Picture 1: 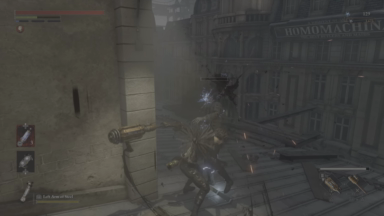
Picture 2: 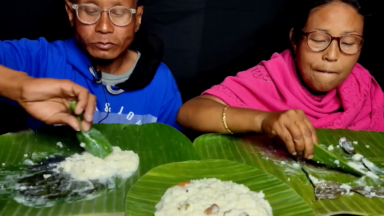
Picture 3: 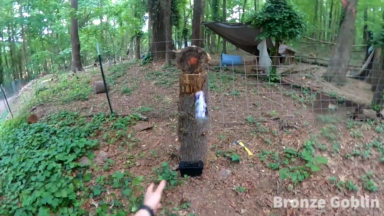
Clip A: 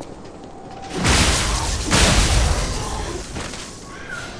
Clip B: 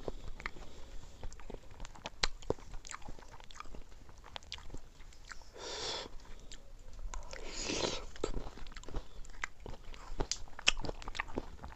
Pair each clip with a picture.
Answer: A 1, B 2